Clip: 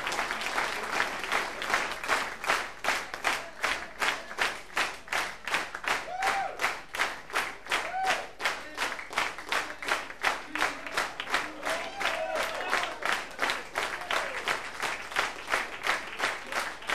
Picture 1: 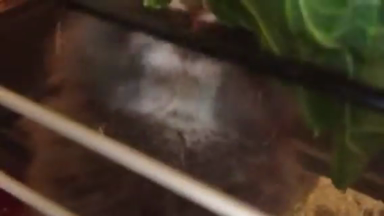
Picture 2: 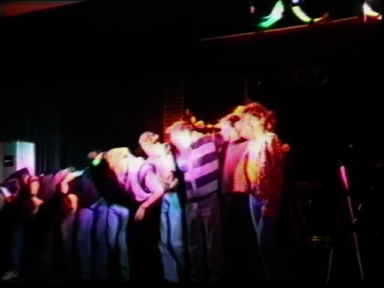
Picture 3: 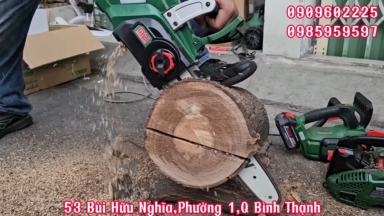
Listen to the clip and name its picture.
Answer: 2